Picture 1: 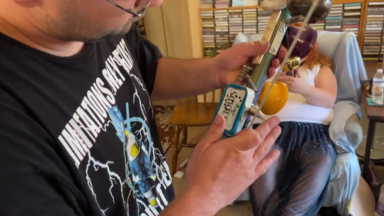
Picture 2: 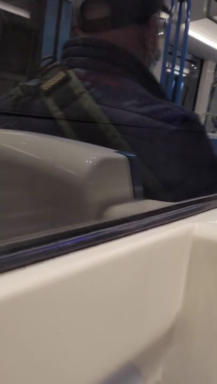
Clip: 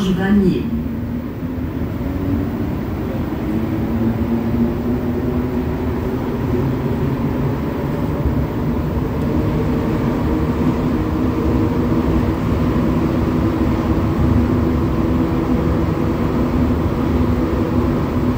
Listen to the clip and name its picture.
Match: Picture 2